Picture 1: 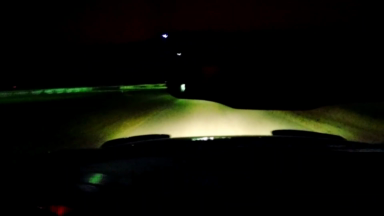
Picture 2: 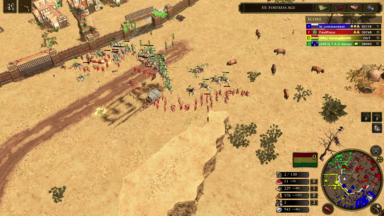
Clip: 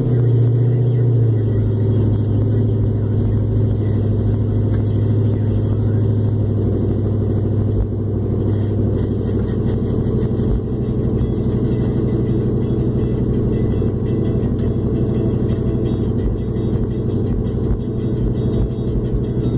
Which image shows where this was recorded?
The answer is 1